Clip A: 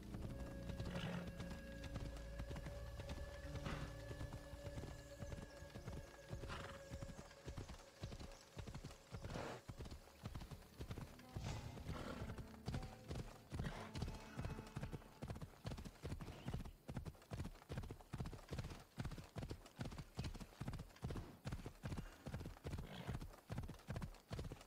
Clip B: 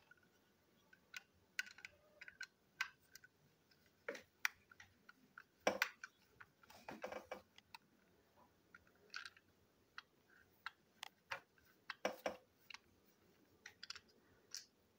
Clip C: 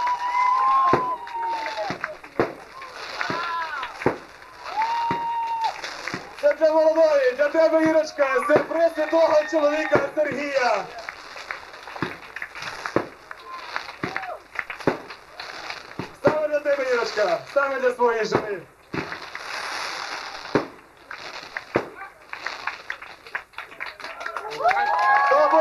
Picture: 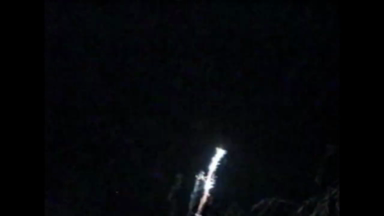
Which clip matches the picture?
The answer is C